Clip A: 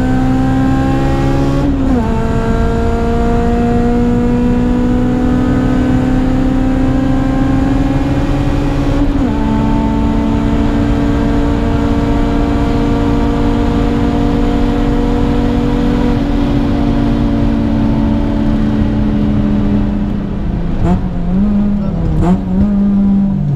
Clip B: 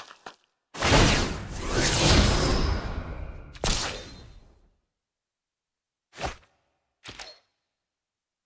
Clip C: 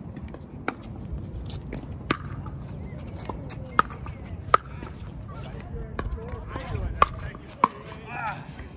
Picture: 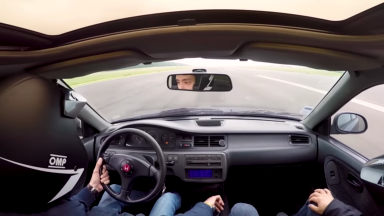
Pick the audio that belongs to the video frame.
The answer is A